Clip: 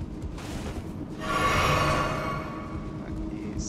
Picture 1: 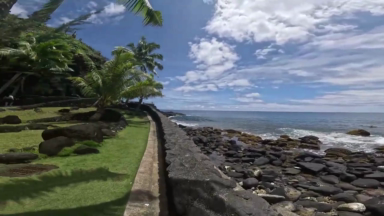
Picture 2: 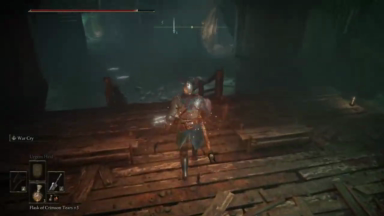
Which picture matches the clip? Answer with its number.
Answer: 2